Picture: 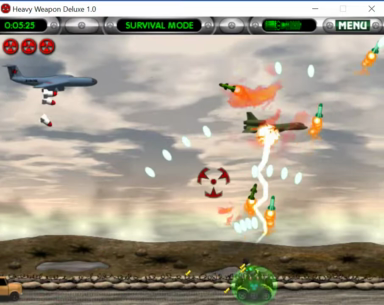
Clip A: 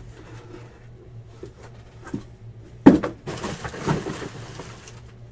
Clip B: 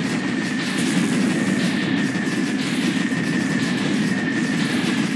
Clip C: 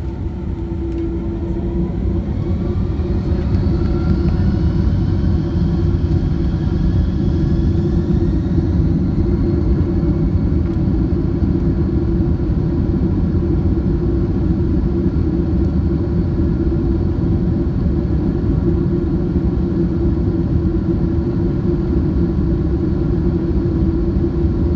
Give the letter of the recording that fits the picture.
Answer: B